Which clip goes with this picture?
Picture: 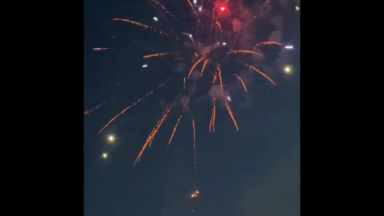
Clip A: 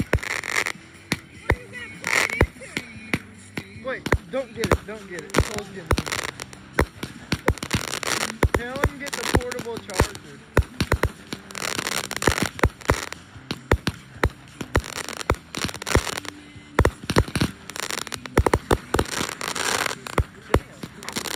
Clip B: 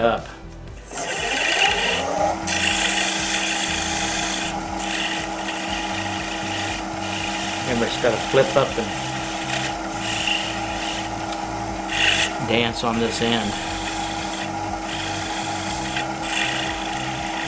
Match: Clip A